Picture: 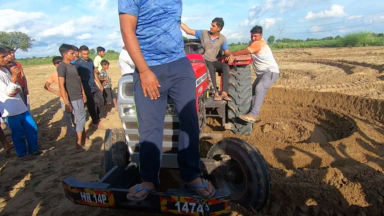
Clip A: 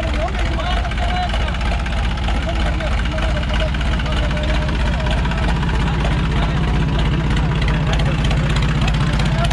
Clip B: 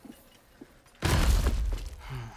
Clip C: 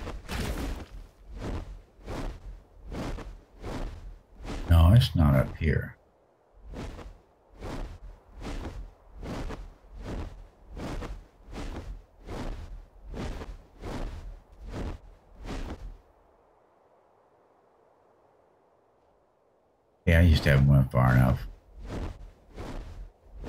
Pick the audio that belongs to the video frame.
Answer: A